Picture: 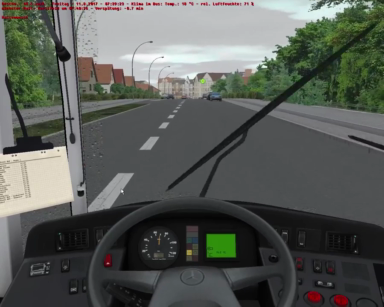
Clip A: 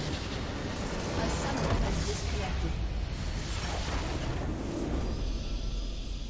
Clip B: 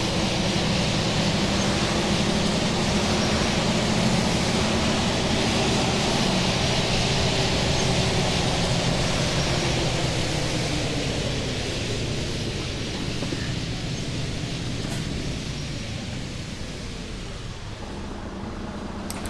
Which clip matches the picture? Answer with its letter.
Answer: B